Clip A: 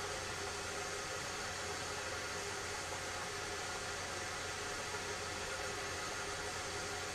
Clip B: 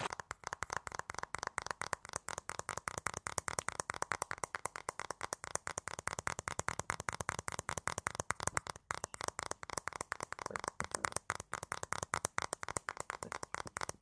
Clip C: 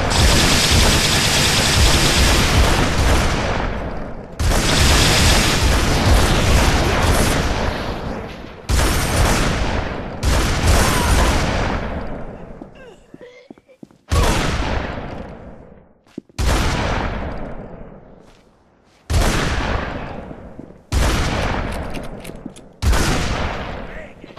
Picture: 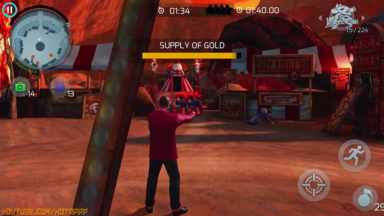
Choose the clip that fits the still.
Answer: C